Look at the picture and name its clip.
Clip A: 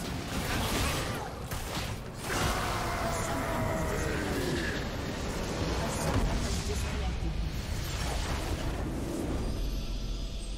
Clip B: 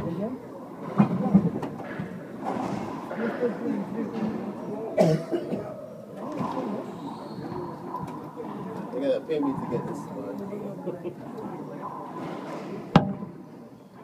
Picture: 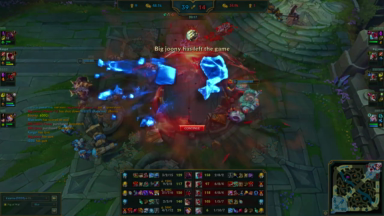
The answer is A